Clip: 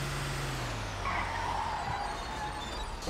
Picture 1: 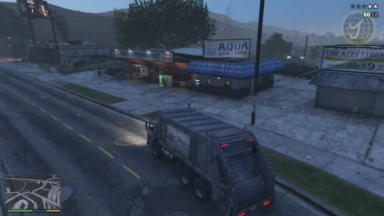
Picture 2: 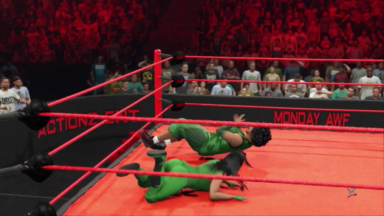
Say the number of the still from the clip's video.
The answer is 1